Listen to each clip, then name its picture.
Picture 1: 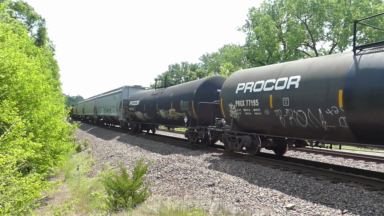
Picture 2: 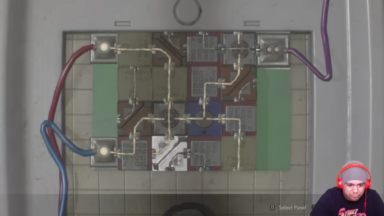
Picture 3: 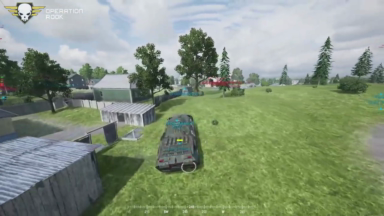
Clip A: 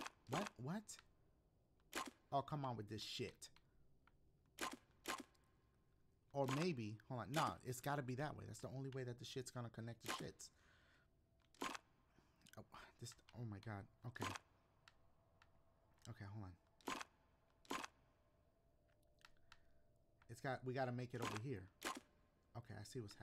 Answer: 2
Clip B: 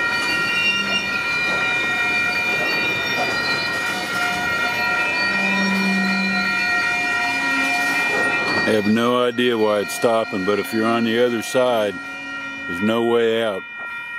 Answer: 1